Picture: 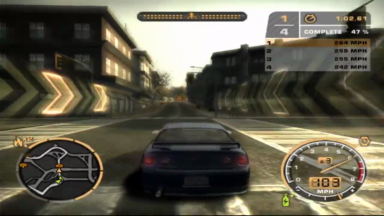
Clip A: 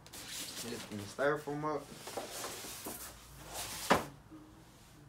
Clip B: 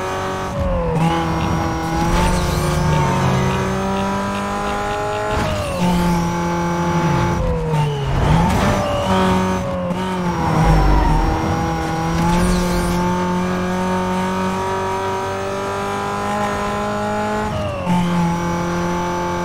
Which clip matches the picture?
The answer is B